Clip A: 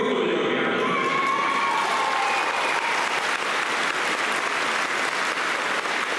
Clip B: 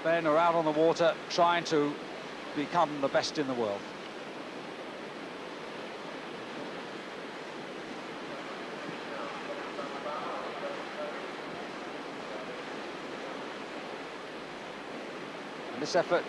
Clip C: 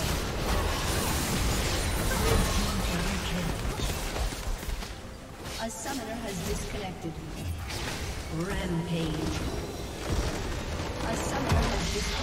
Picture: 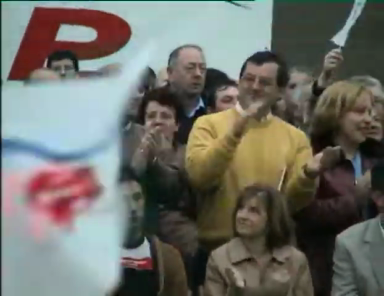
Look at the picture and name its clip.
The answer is A